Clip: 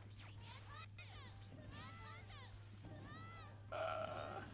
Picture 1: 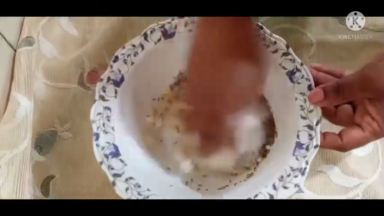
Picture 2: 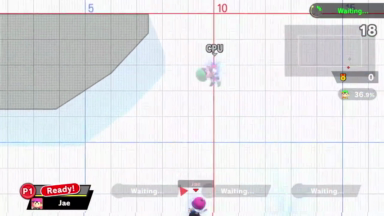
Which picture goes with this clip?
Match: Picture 2